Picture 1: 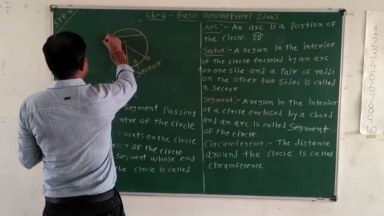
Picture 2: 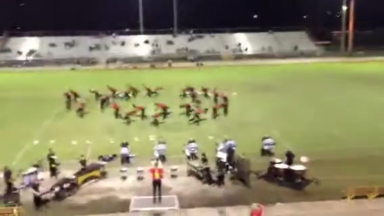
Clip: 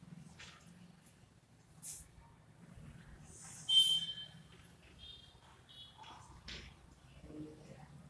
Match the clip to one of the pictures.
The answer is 1